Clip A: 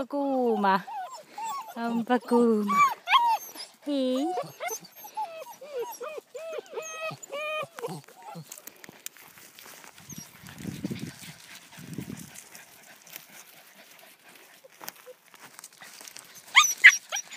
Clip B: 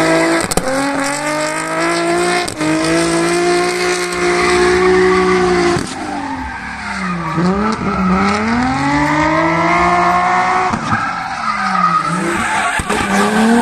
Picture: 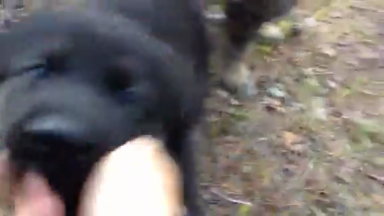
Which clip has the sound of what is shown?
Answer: A